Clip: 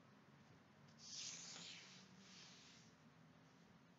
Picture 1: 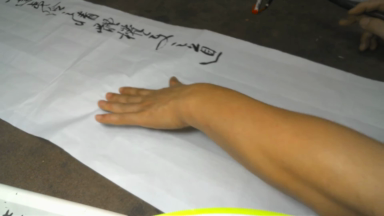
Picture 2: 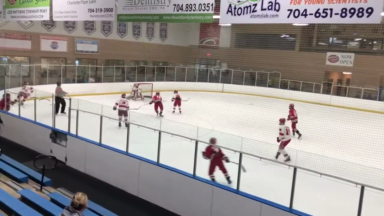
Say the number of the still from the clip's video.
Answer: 1